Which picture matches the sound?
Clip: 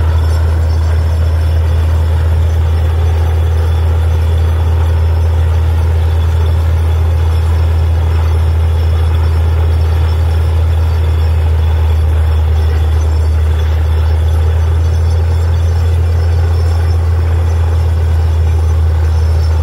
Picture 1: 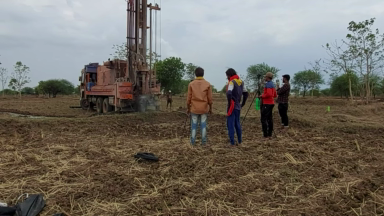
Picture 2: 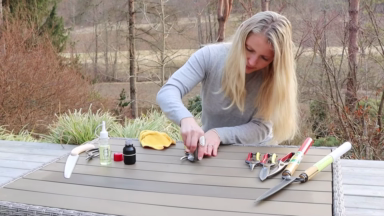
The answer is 1